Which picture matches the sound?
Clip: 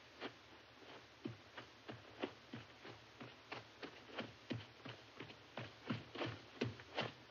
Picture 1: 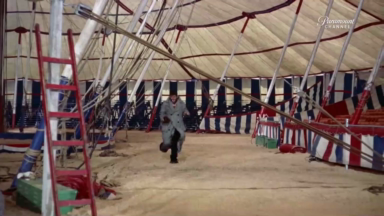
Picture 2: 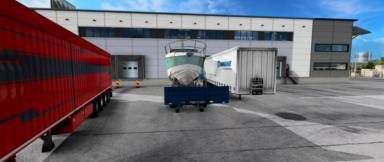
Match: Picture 1